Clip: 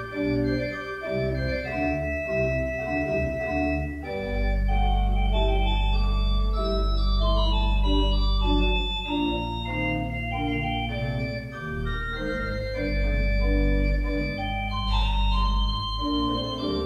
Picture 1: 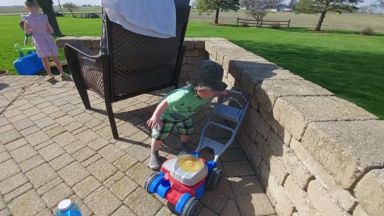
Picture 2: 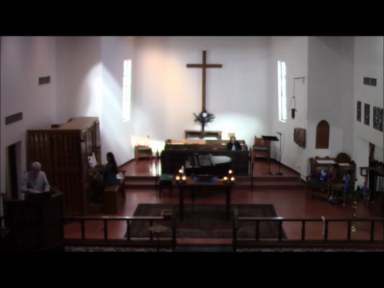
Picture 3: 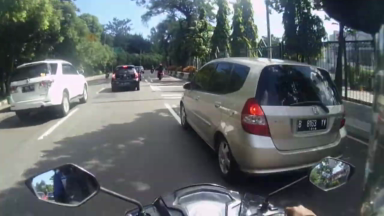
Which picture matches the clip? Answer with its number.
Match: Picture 2